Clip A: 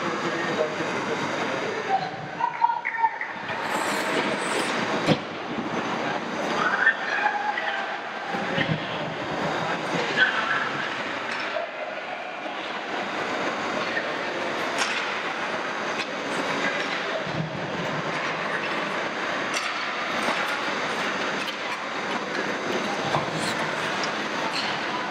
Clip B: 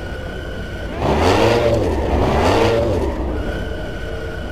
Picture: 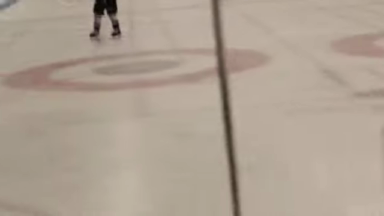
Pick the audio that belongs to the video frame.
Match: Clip A